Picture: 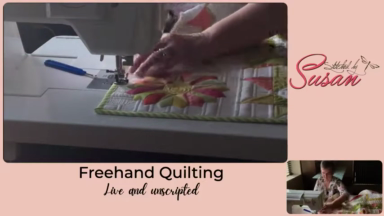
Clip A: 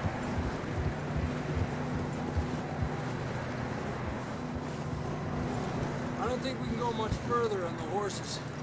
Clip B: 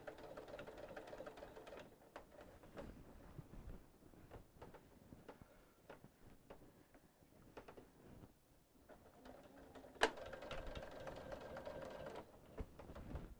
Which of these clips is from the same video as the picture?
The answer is B